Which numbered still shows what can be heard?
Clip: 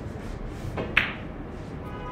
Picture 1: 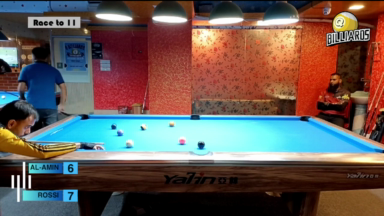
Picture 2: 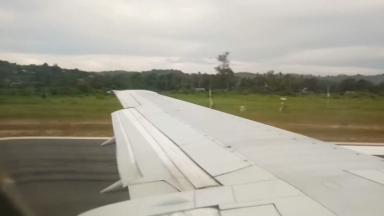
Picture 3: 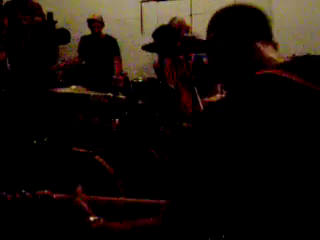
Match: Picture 1